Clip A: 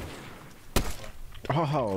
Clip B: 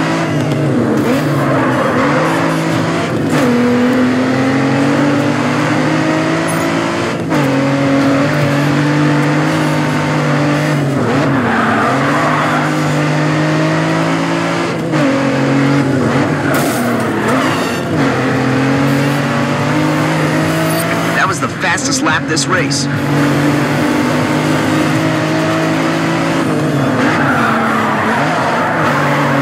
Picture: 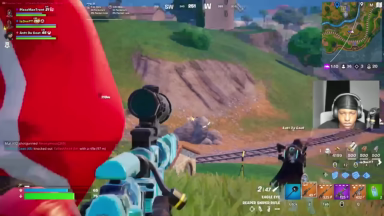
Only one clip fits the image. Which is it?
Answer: A